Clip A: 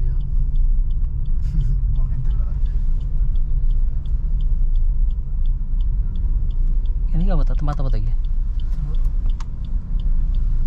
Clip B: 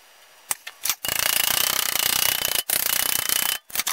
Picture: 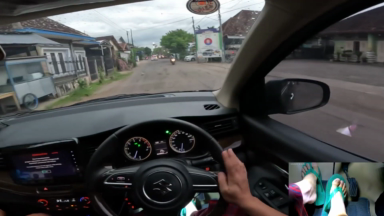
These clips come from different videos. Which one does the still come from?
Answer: A